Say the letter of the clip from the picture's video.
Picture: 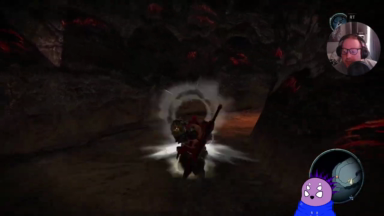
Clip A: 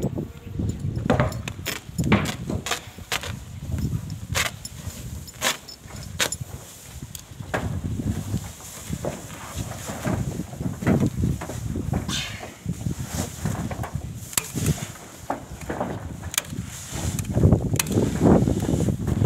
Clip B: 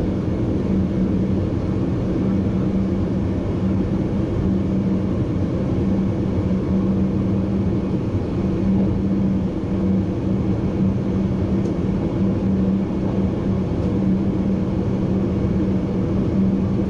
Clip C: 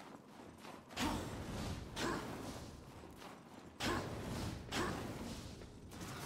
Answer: C